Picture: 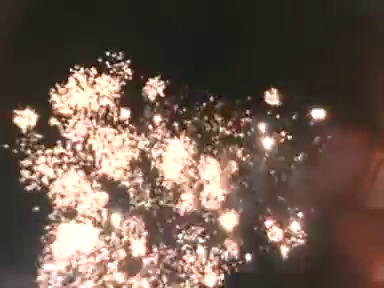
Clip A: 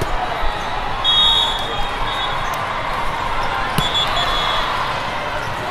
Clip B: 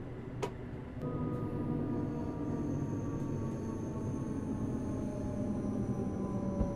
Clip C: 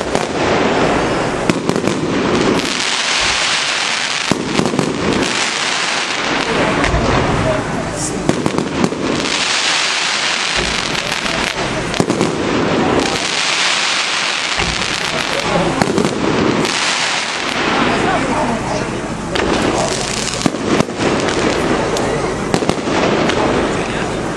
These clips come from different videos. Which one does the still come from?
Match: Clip C